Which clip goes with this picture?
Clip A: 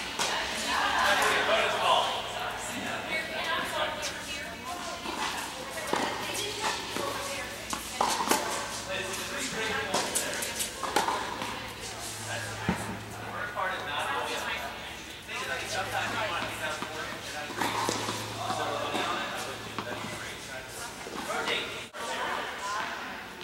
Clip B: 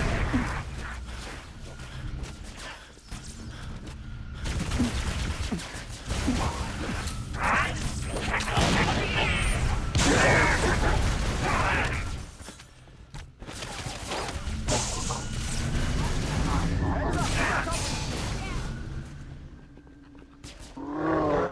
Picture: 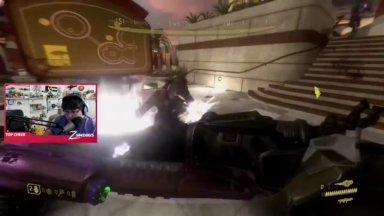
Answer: B